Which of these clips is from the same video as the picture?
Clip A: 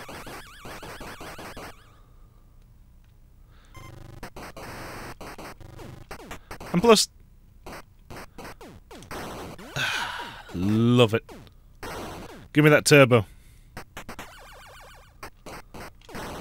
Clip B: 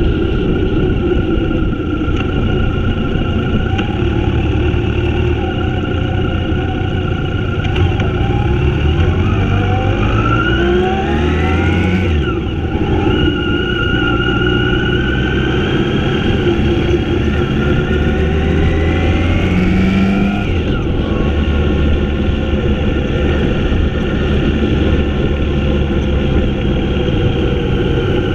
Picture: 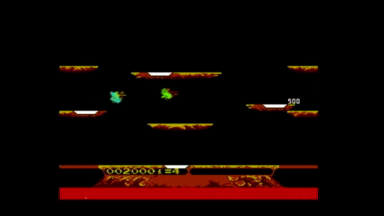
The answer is A